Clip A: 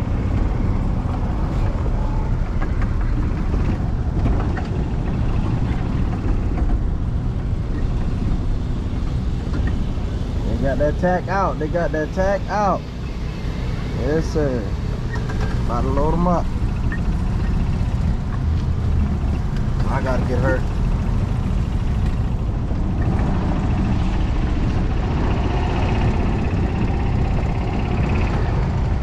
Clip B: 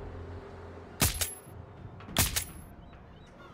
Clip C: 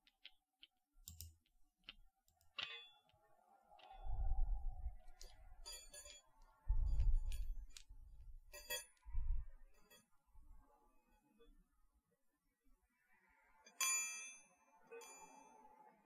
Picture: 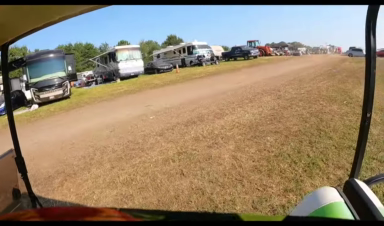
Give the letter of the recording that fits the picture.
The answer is A